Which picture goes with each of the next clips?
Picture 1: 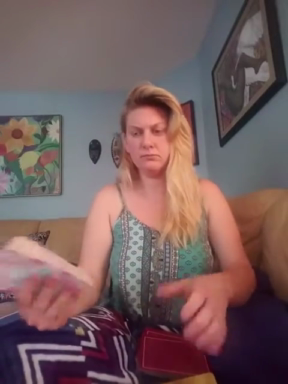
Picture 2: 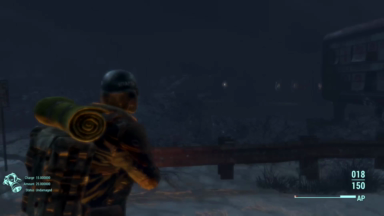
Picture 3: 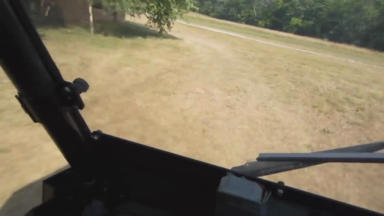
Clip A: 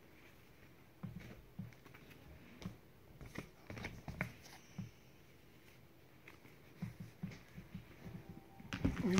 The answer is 1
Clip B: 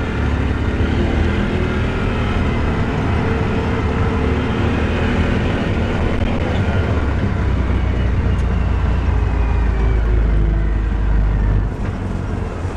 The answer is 3